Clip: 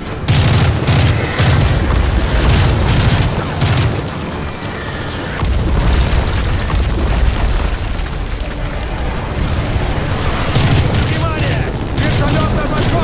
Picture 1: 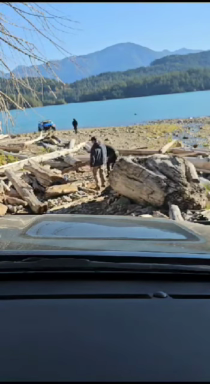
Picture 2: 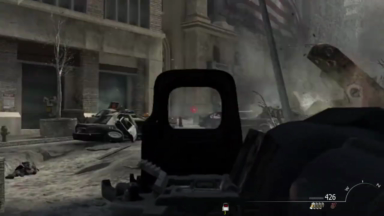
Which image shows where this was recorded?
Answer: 2